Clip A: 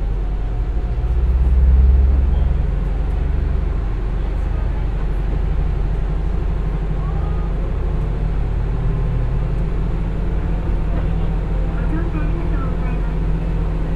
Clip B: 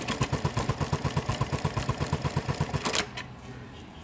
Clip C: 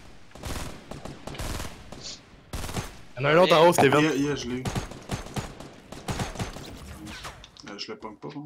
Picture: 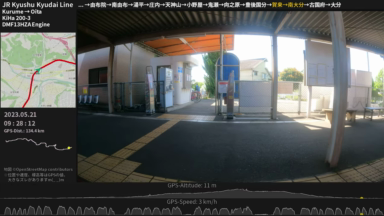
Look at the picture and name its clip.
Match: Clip A